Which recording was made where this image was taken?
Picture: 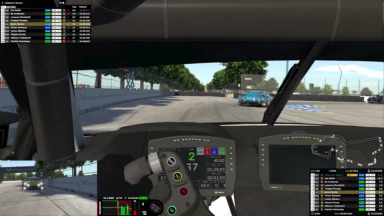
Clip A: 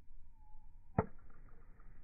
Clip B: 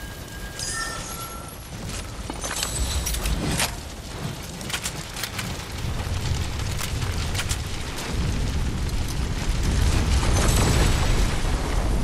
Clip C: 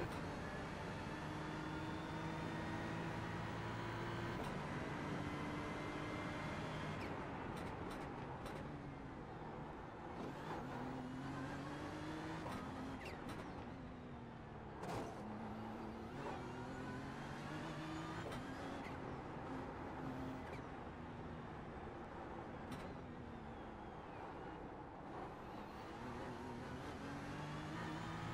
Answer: C